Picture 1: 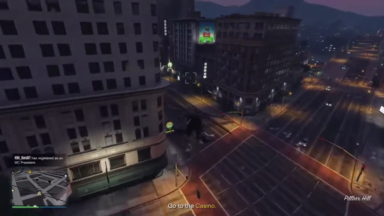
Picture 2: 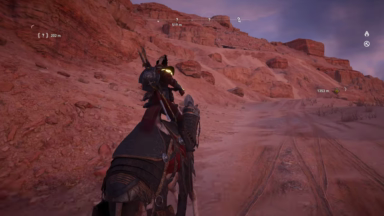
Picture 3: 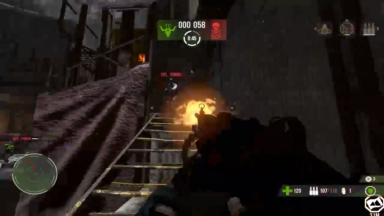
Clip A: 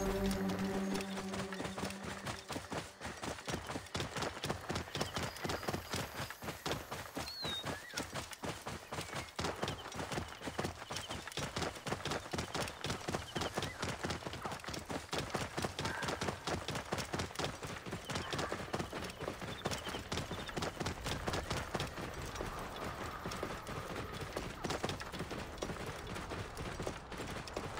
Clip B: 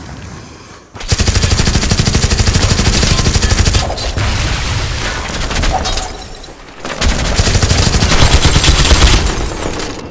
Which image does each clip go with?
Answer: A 2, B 3